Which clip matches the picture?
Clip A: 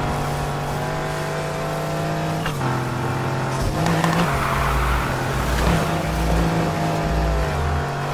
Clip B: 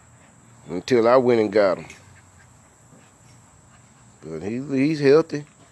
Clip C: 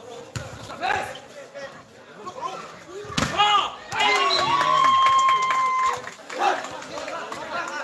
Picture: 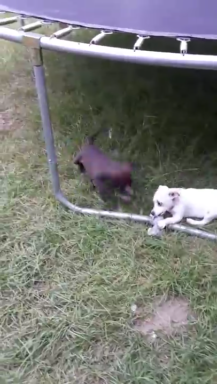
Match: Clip B